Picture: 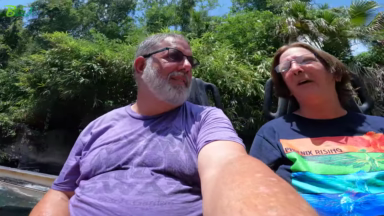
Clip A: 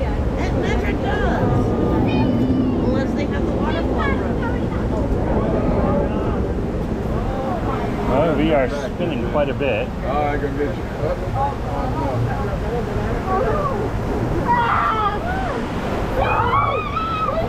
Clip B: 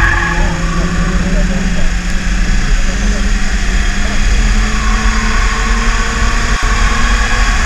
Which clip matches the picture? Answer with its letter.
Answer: A